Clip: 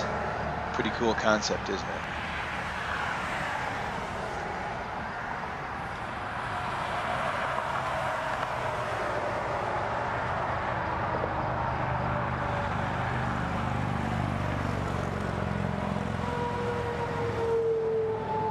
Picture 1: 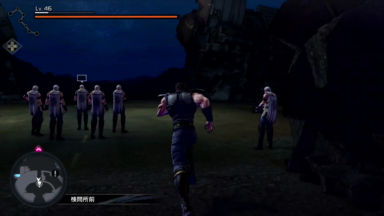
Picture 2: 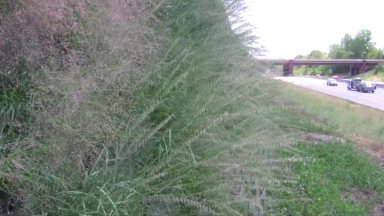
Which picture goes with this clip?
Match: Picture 2